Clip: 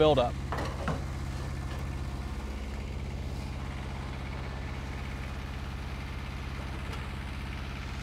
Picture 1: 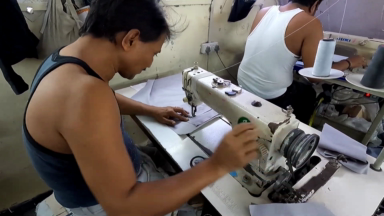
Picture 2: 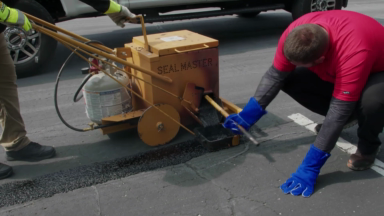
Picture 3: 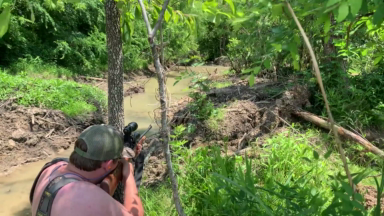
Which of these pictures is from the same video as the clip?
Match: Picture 2